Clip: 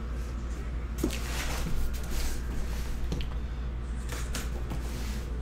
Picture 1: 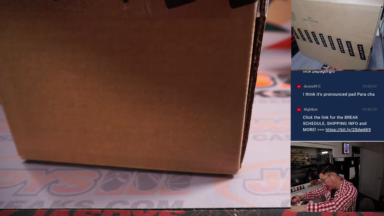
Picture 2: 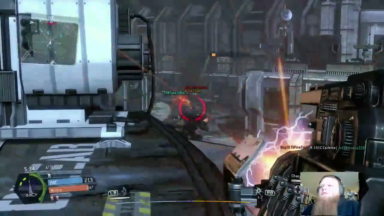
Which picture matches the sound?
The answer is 1